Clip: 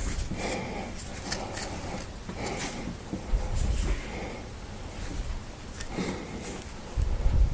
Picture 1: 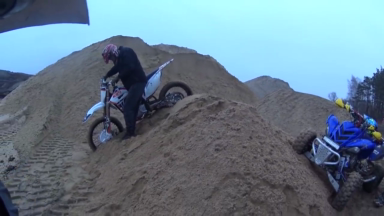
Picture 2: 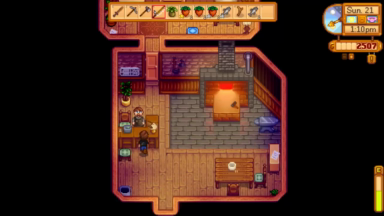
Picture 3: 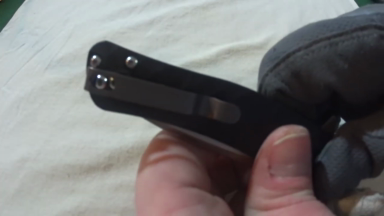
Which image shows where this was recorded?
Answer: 3